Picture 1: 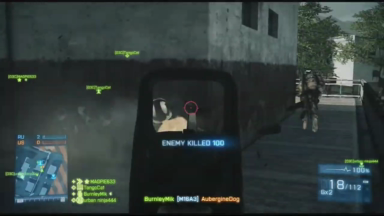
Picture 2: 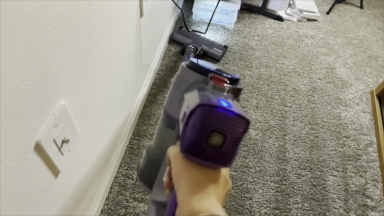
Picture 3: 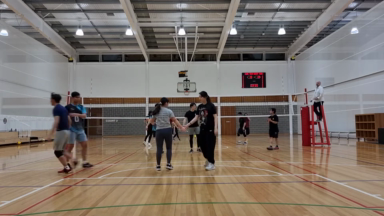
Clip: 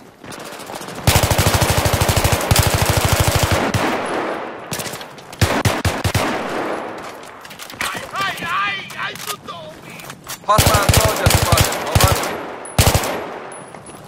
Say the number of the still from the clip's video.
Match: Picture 1